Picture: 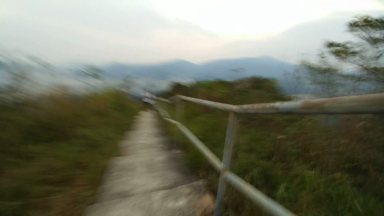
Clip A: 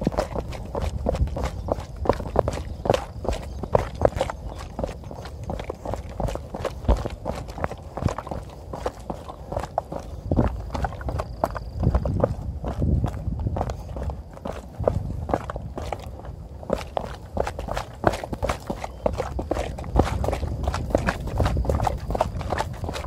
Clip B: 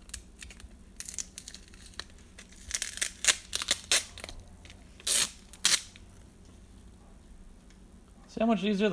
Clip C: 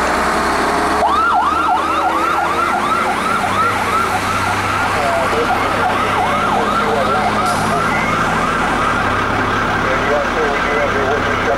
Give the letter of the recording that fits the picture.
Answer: A